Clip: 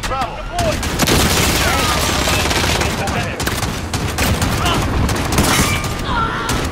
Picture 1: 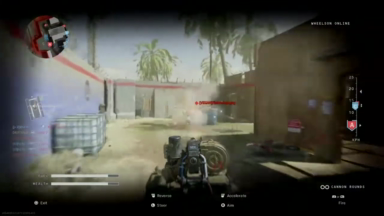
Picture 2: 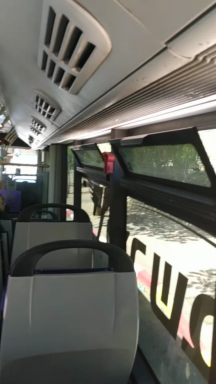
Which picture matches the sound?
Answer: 1